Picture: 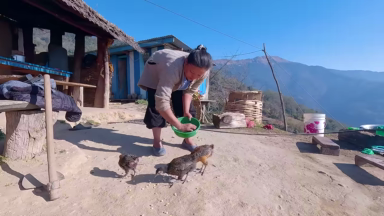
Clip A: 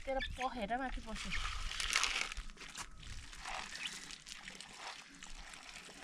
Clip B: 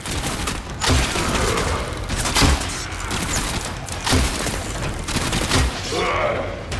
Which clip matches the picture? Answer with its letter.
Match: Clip A